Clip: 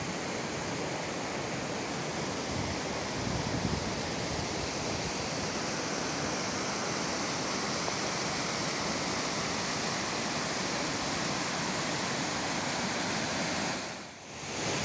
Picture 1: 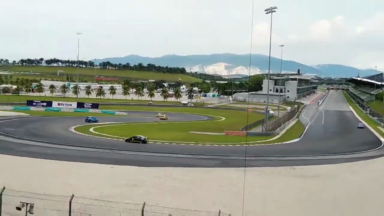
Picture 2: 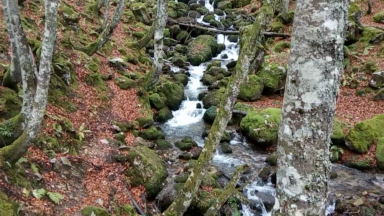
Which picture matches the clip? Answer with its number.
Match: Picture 2